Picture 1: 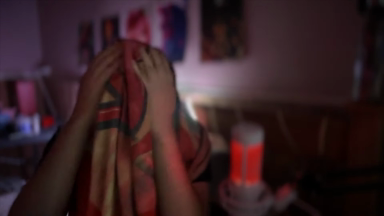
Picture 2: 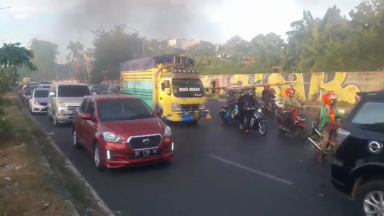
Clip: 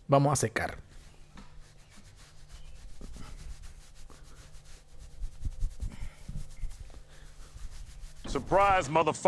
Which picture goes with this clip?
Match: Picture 1